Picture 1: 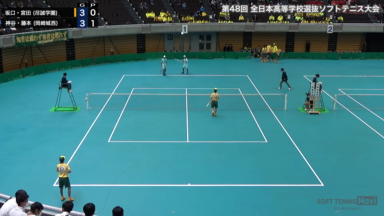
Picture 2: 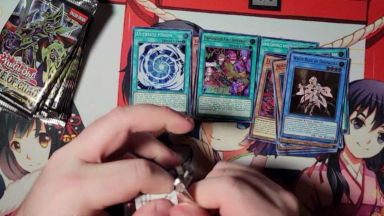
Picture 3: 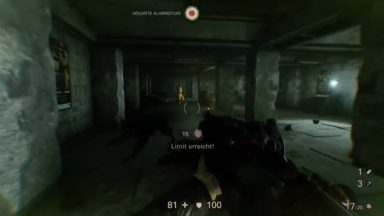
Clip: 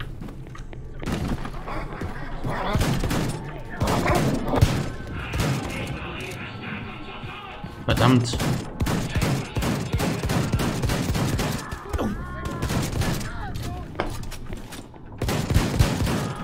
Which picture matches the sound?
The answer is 3